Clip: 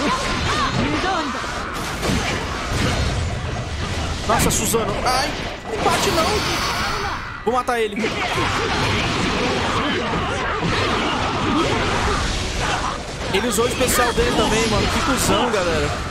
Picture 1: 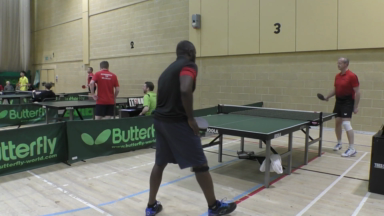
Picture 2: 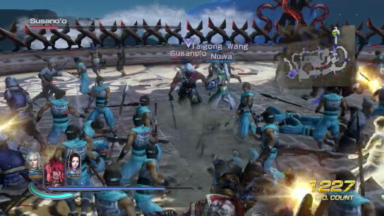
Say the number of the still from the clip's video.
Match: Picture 2